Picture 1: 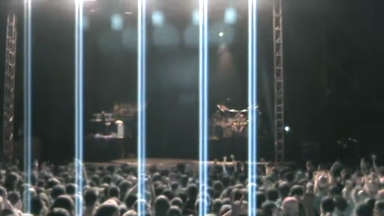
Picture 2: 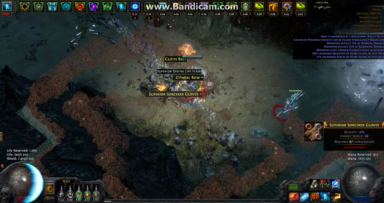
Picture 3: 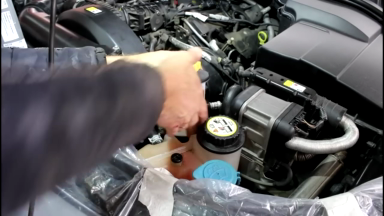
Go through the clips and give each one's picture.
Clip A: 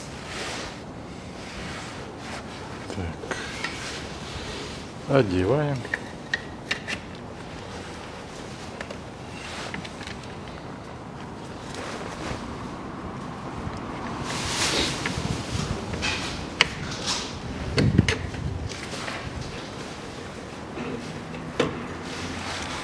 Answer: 3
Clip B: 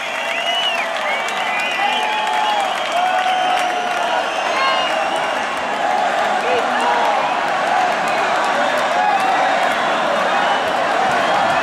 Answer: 1